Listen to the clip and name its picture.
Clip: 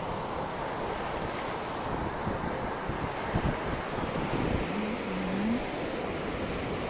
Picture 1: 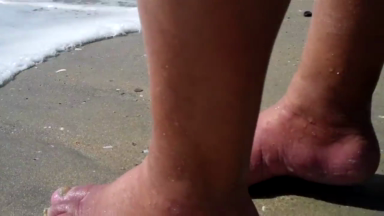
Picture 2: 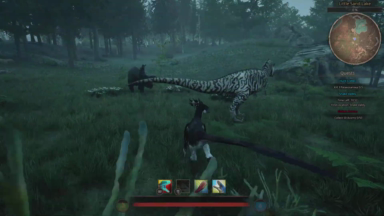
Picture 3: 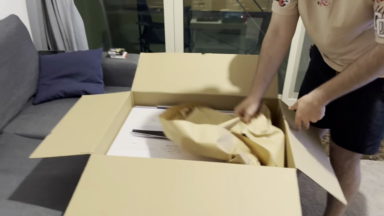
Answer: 1